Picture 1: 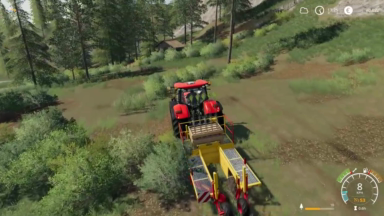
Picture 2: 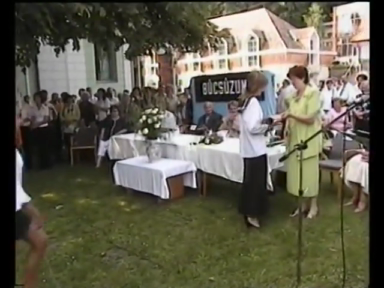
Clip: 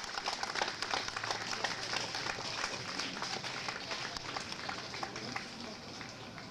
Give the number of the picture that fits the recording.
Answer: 2